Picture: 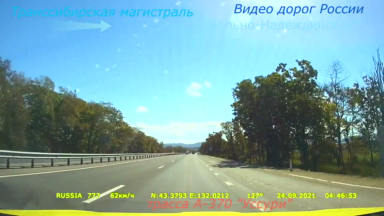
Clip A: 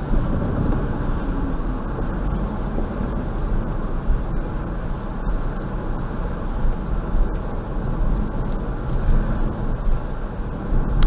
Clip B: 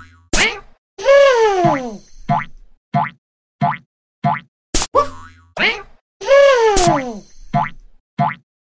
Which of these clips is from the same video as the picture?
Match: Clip A